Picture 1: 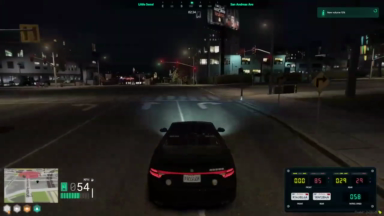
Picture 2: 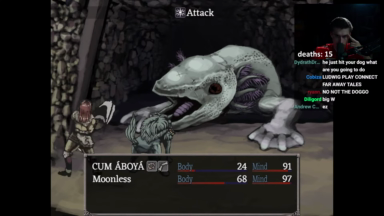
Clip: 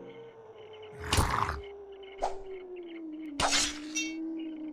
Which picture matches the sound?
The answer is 2